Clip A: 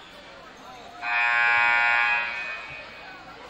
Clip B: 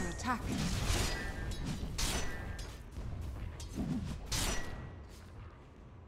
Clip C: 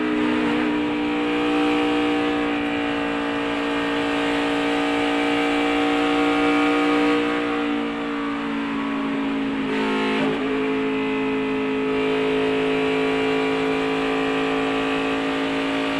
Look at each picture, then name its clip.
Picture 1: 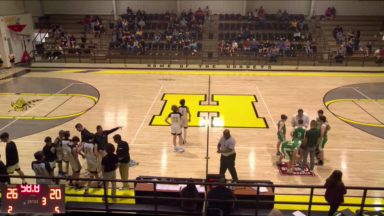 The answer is A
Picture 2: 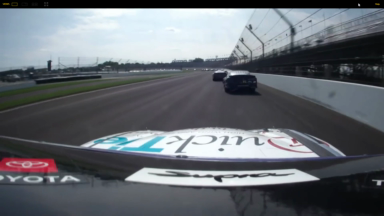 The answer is C